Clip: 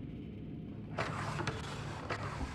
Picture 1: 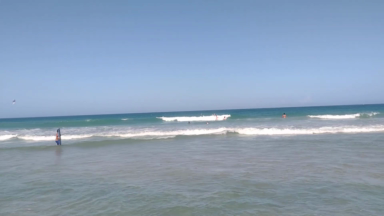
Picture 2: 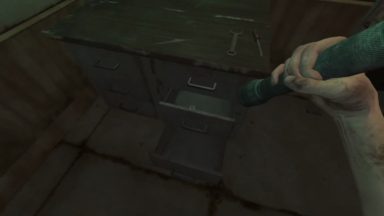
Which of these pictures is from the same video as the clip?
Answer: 2